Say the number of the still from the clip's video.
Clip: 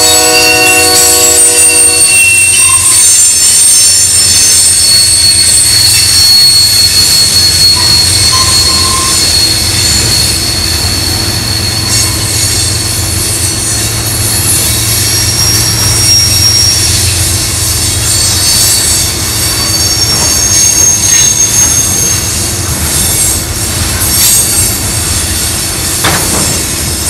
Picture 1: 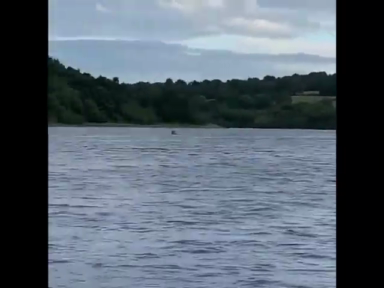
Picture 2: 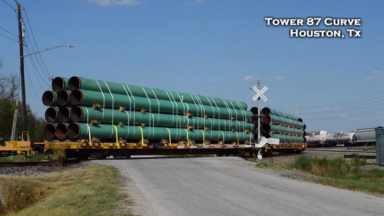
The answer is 2